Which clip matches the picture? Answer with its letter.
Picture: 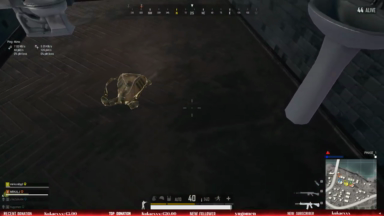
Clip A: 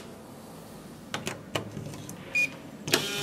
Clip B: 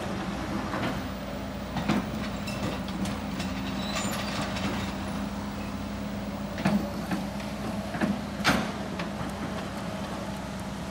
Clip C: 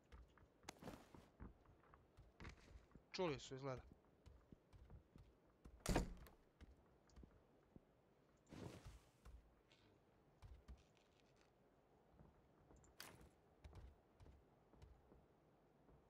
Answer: C